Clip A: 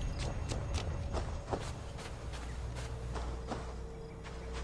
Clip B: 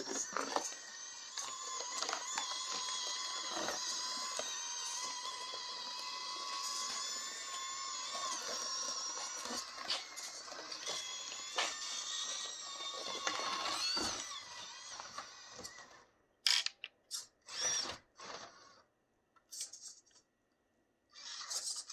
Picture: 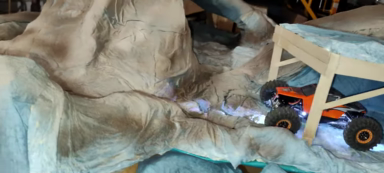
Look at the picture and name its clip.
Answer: B